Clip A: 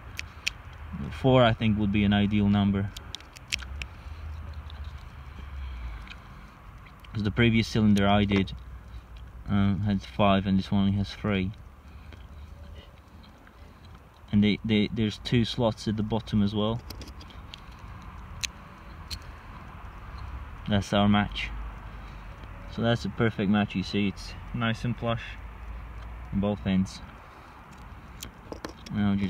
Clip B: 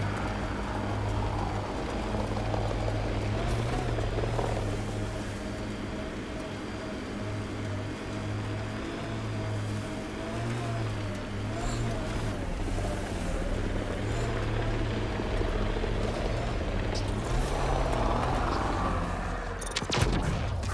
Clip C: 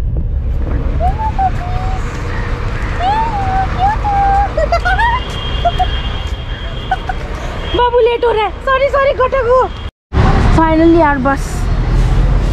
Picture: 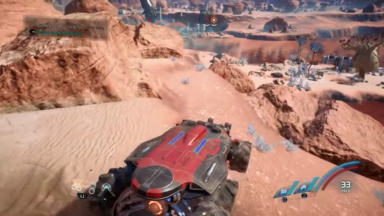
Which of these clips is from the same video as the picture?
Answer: B